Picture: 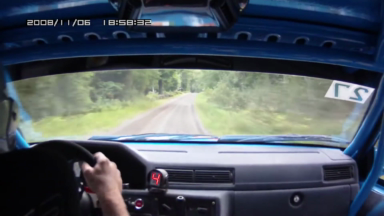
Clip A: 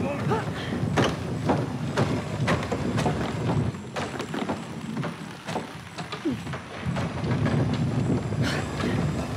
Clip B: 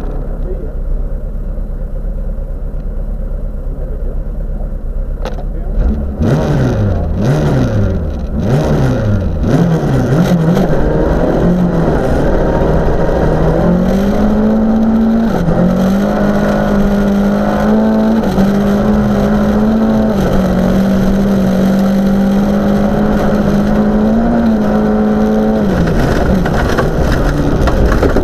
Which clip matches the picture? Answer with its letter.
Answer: B